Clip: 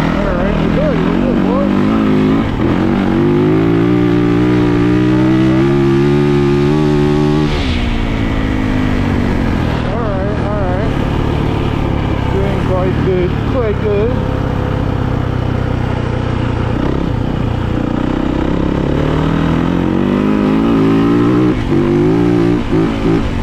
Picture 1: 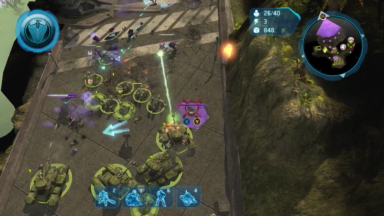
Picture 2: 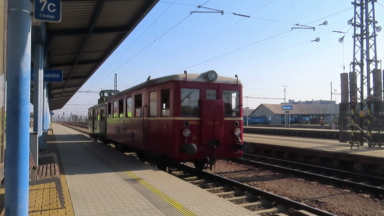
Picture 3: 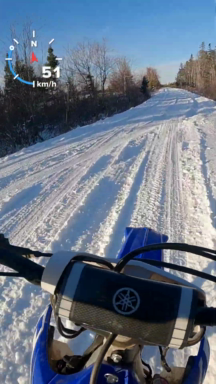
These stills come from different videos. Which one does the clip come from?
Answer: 3